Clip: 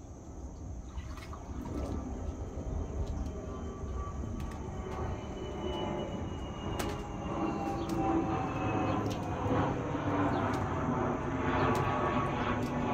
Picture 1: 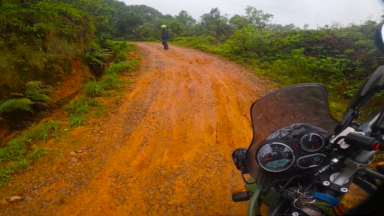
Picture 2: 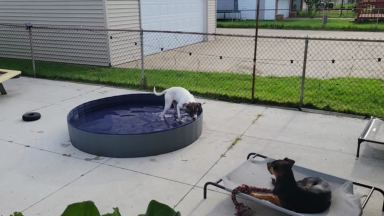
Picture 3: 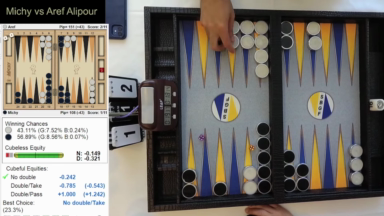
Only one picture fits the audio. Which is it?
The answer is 2